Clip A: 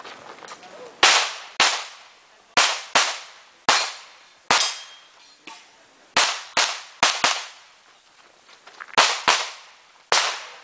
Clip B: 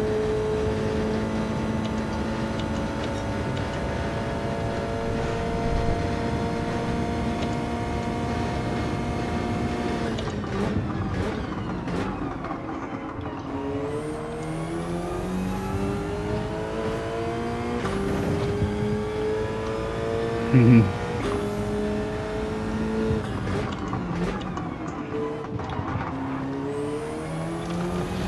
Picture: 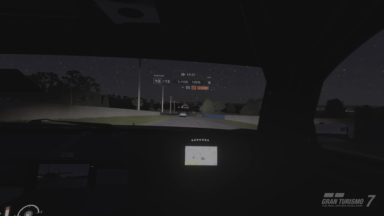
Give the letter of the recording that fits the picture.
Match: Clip B